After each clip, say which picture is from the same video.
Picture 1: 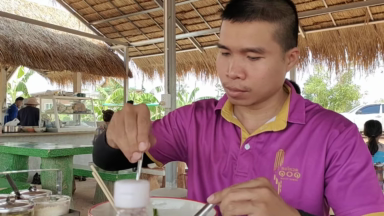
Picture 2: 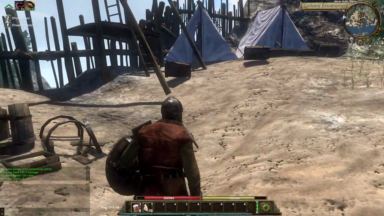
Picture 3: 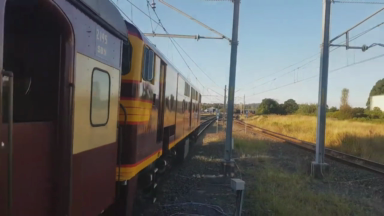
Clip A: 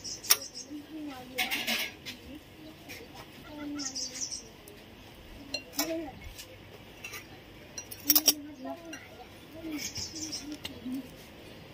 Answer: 1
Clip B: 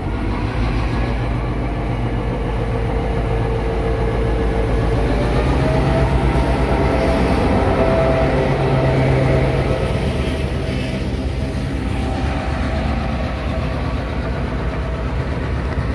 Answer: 3